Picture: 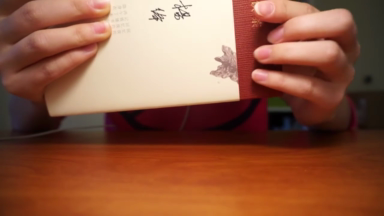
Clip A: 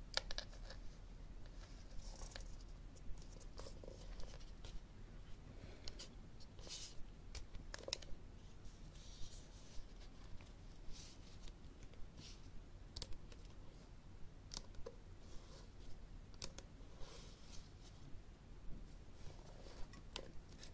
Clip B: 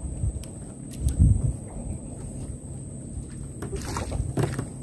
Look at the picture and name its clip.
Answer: A